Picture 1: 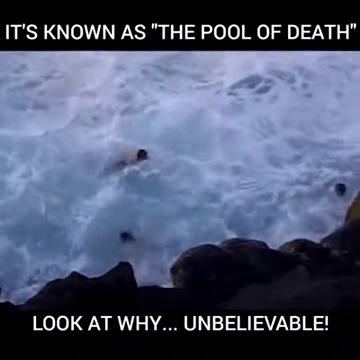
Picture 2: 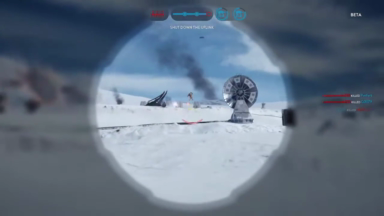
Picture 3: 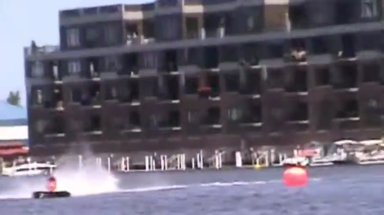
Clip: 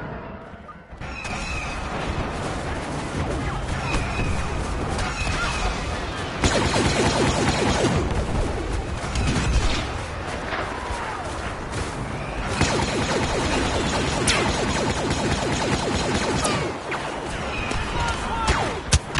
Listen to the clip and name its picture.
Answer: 2